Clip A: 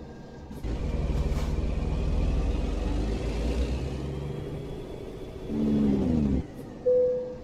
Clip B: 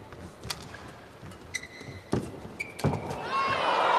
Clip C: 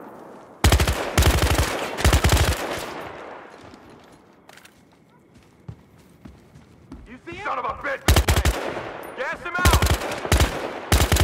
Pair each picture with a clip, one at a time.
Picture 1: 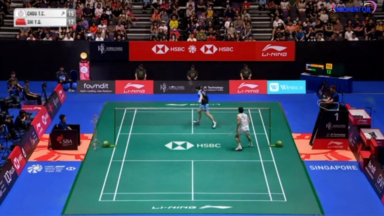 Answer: B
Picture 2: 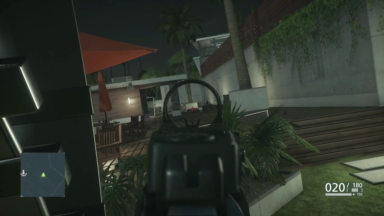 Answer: C